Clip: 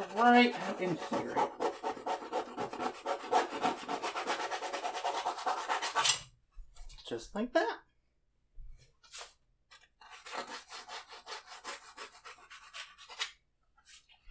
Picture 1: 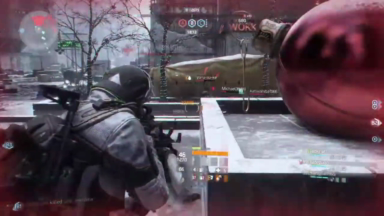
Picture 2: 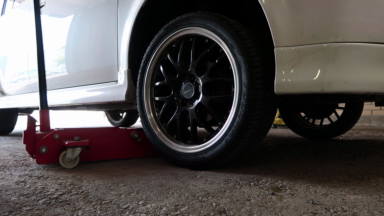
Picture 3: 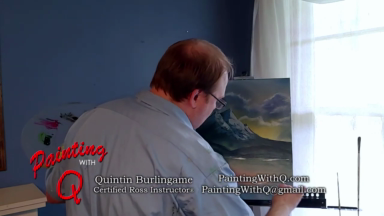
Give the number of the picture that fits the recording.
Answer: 3